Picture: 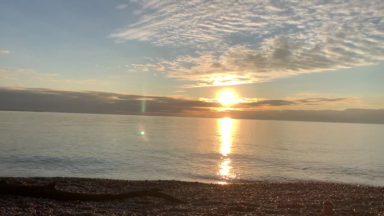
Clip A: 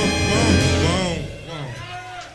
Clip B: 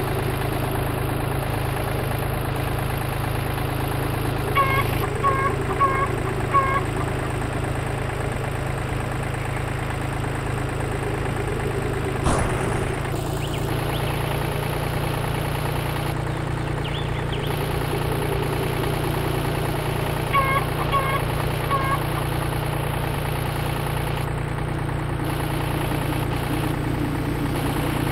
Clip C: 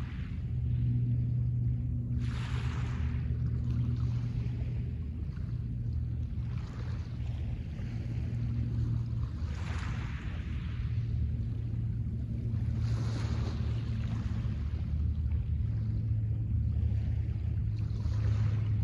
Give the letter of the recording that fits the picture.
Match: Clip C